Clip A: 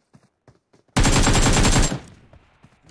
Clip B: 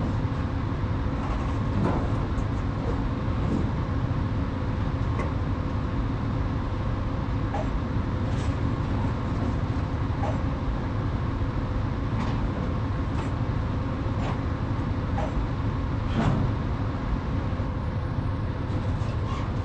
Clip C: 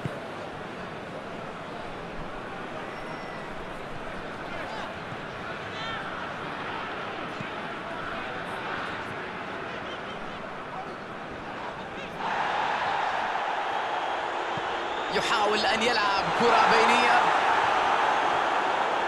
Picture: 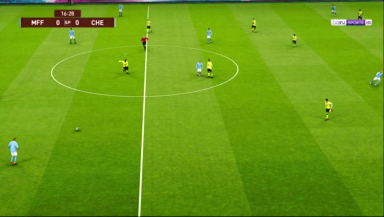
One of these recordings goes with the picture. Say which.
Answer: C